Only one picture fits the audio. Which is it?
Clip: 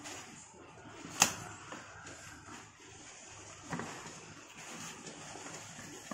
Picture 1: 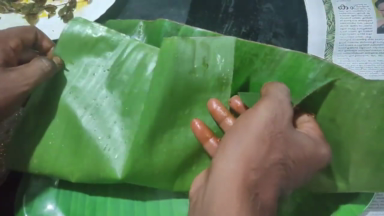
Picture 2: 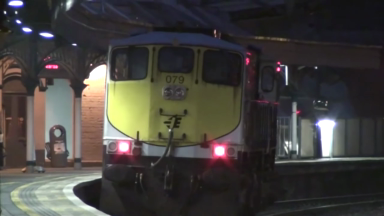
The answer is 1